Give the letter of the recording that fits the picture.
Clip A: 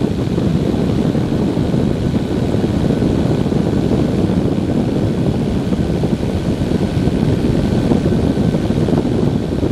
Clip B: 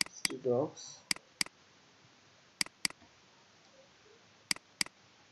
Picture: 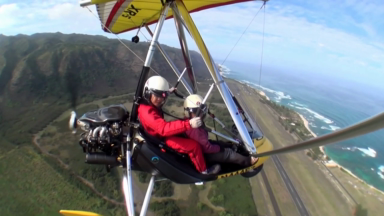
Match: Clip A